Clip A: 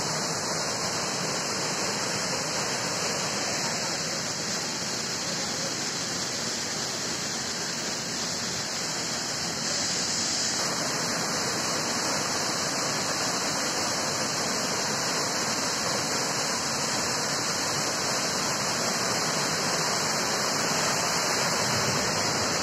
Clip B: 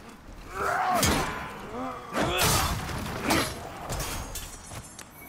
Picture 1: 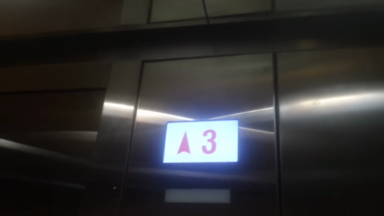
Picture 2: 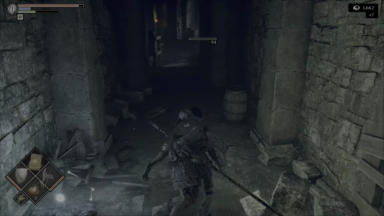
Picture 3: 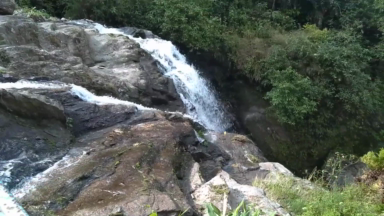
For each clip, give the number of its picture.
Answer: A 3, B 2